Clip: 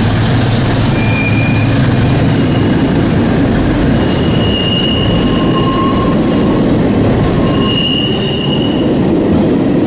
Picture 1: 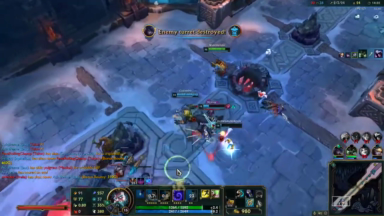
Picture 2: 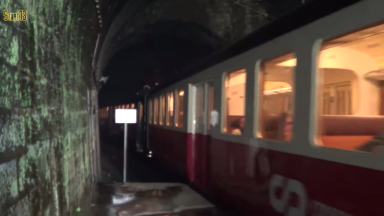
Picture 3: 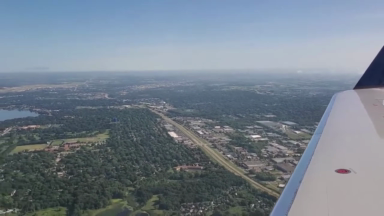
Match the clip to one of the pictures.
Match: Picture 2